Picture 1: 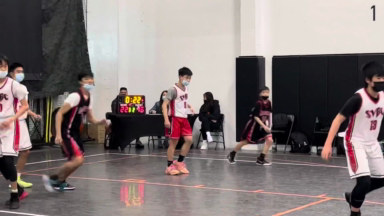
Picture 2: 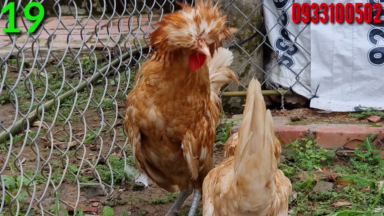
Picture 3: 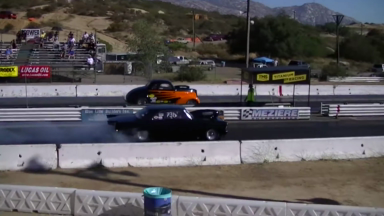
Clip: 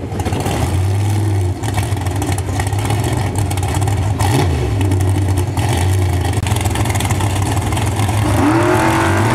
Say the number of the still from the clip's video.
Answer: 3